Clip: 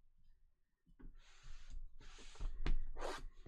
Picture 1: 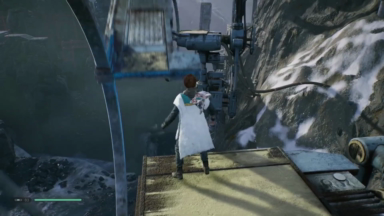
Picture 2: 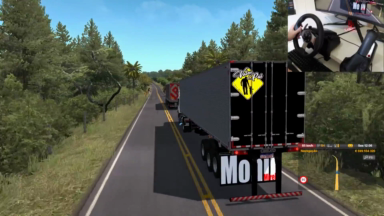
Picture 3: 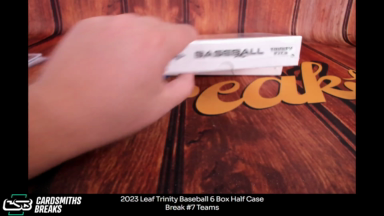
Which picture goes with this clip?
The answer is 3